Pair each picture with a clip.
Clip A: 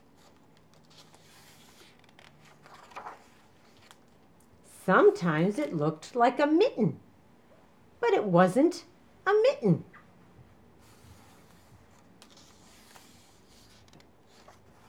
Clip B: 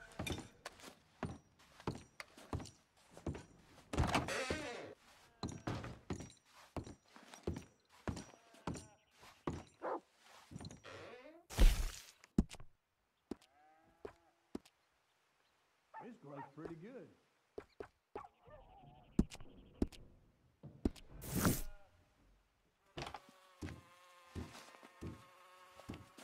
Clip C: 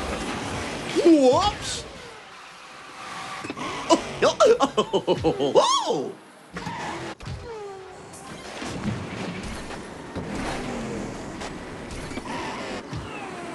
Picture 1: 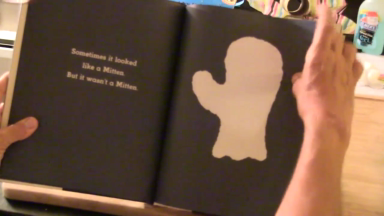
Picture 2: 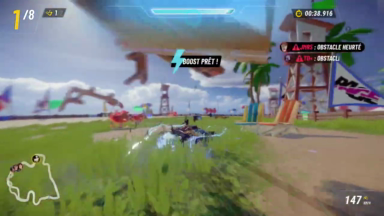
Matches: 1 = A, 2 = C